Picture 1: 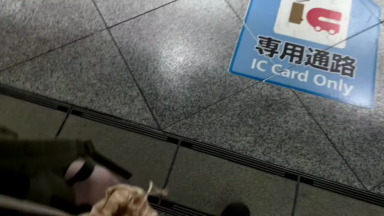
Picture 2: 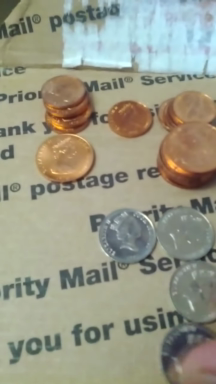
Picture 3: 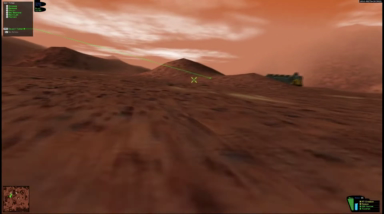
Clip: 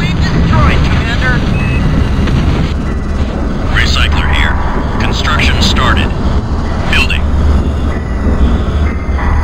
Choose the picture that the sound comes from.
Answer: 3